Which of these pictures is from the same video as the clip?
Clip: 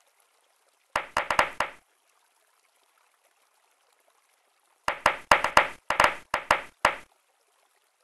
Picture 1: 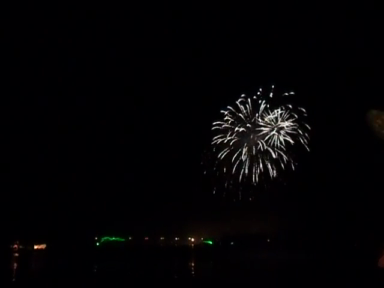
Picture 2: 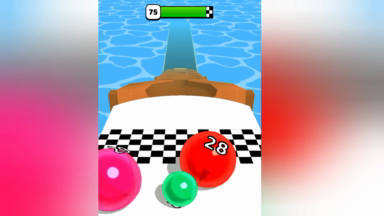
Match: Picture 2